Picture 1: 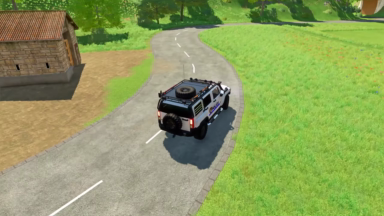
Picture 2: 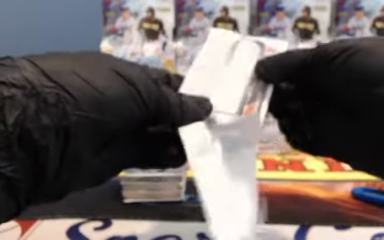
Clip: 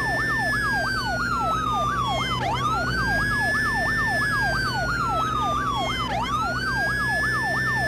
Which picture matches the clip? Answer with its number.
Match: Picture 1